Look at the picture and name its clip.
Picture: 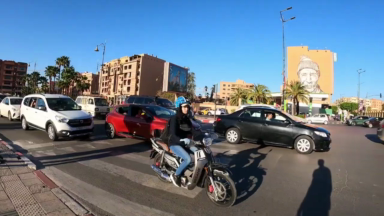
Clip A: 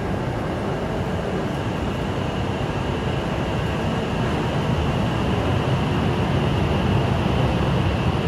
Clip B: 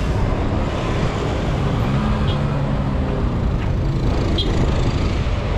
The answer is B